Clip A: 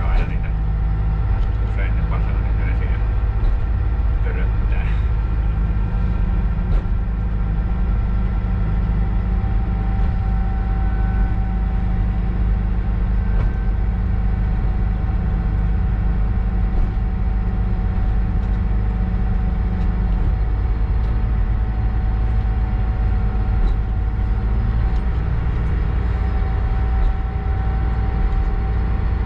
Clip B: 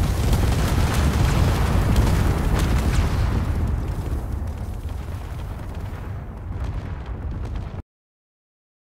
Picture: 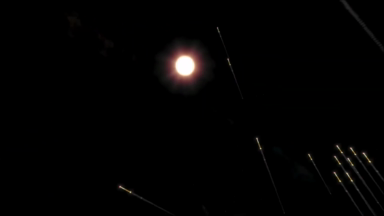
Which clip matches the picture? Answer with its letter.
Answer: B